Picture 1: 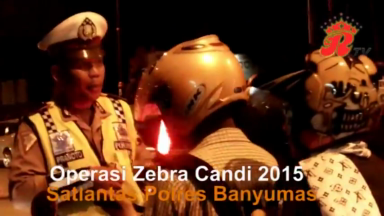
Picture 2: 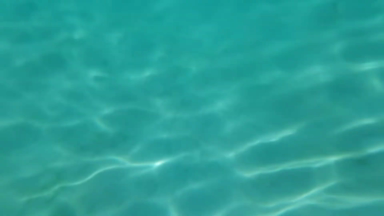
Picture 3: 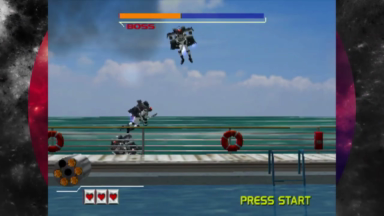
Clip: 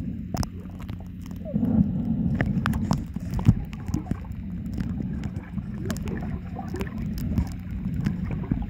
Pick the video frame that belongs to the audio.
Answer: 2